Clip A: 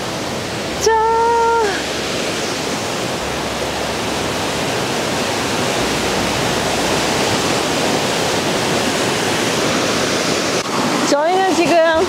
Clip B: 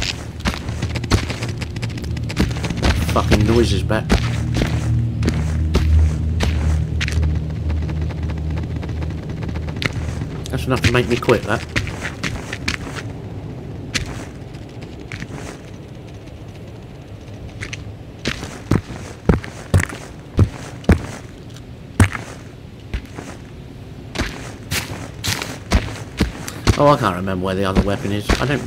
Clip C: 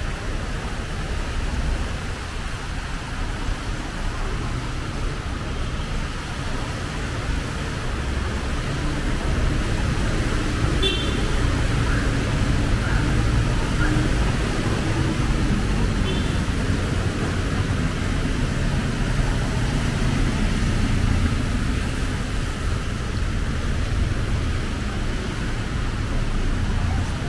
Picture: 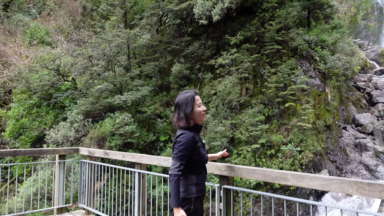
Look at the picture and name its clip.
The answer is A